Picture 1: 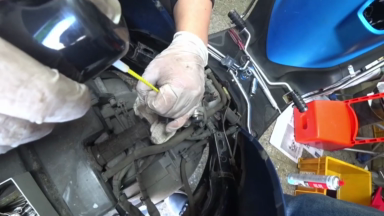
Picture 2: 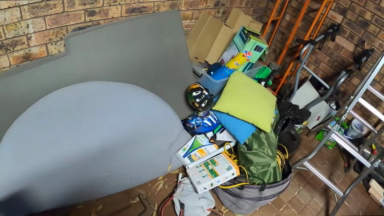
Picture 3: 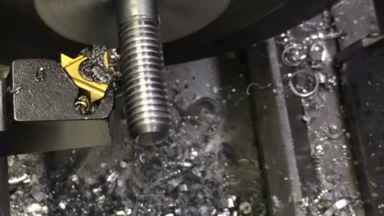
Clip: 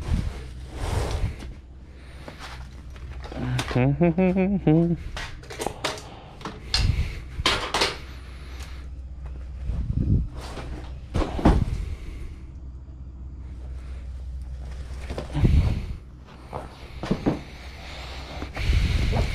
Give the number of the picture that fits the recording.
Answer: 2